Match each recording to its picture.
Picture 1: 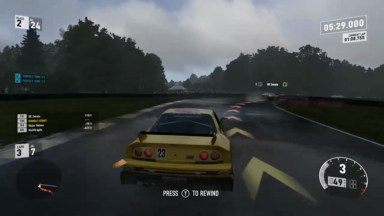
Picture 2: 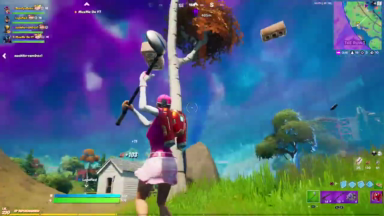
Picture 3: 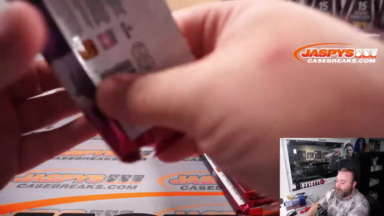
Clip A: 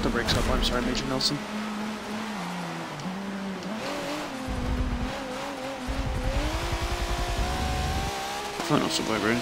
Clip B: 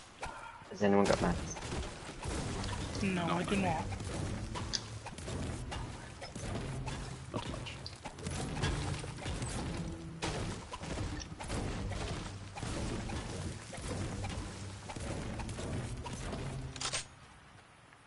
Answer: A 1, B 2